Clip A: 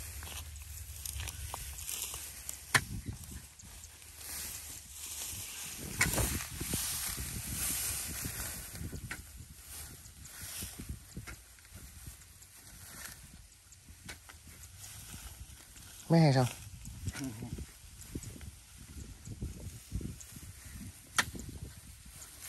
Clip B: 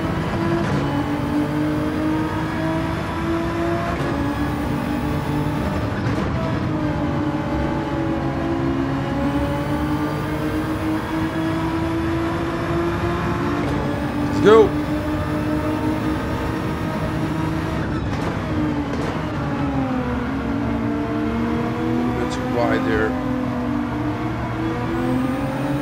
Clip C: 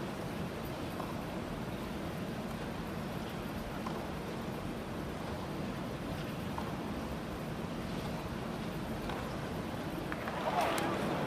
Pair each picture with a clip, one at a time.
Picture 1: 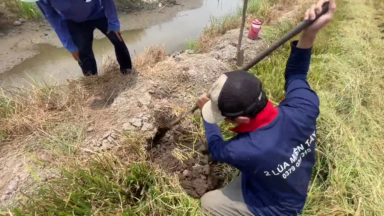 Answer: A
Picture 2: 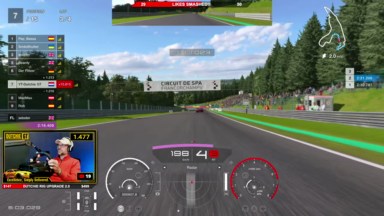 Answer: B